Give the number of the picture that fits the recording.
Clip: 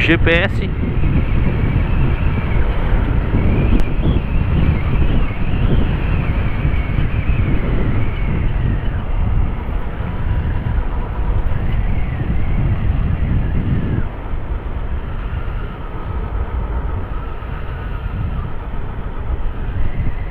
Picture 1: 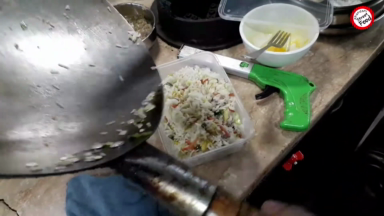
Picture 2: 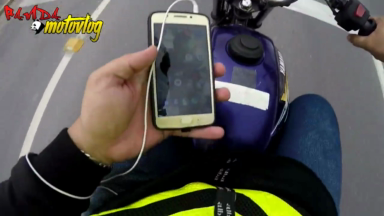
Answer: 2